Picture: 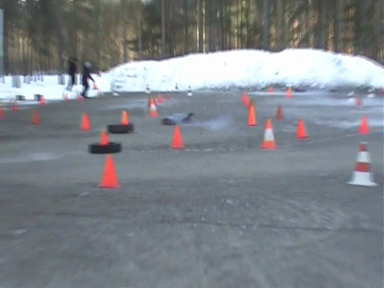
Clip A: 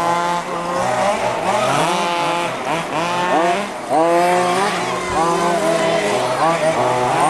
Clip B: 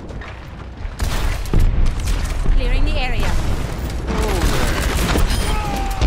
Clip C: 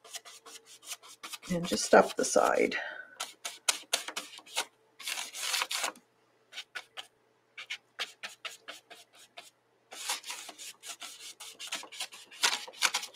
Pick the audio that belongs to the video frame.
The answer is A